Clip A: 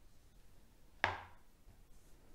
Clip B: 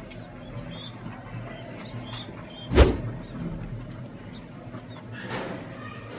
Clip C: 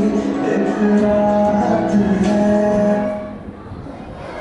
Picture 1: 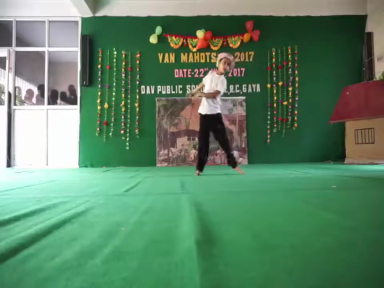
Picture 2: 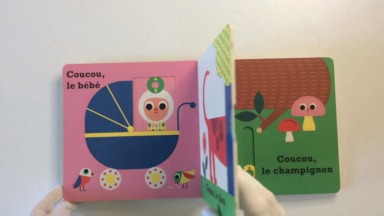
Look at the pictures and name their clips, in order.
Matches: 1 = C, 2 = A